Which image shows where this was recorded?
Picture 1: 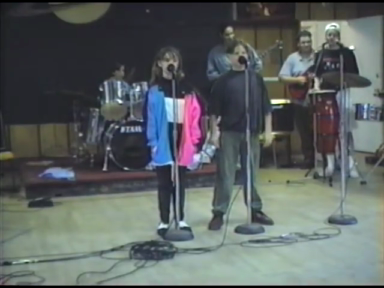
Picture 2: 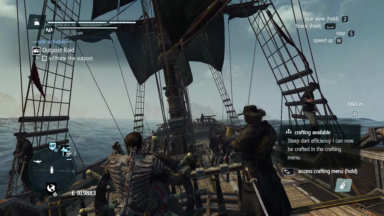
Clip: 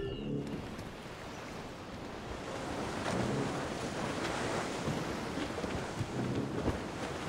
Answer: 2